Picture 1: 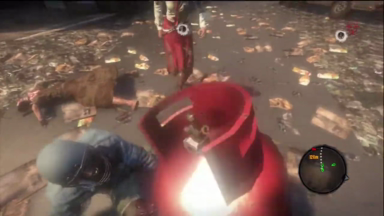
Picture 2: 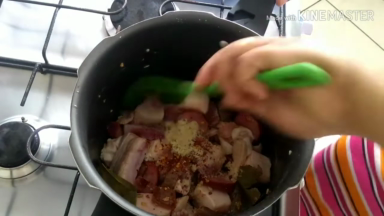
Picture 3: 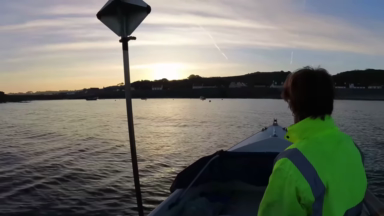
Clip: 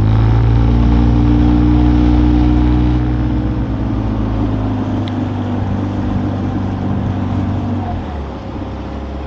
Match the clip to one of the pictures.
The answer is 3